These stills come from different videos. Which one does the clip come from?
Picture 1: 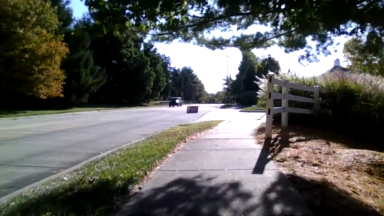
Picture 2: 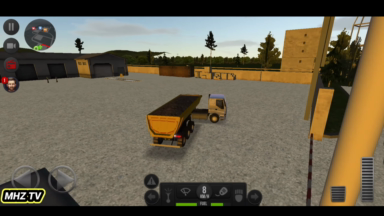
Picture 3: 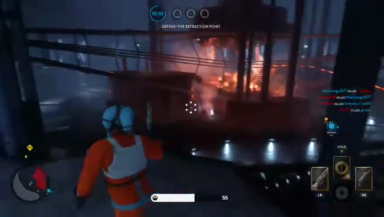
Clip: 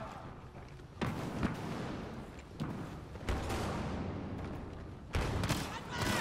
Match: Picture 3